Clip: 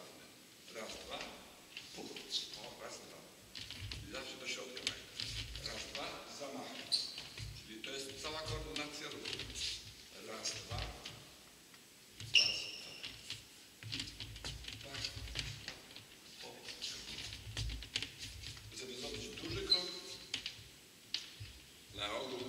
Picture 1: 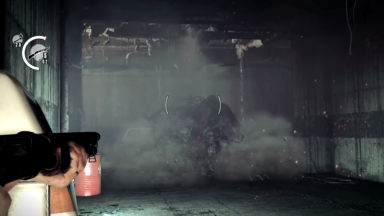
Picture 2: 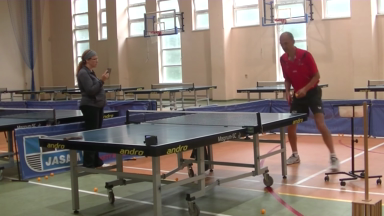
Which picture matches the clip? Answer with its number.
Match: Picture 2